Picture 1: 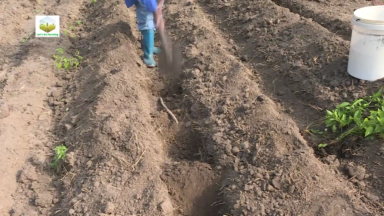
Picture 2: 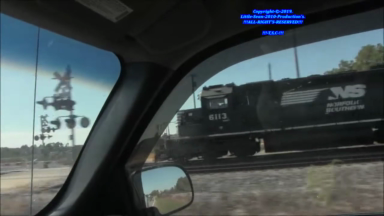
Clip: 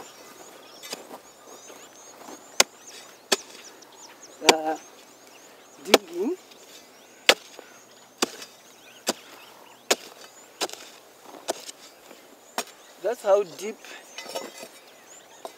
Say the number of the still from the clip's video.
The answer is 1